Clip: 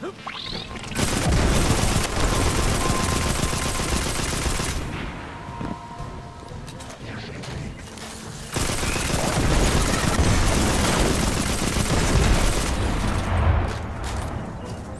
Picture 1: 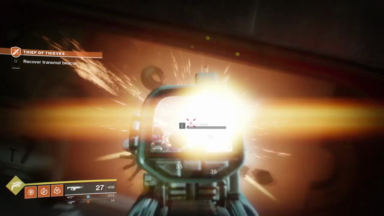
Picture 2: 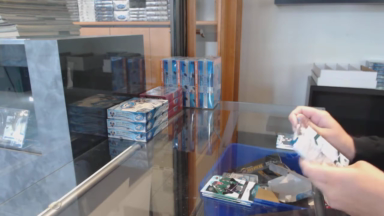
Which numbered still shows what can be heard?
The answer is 1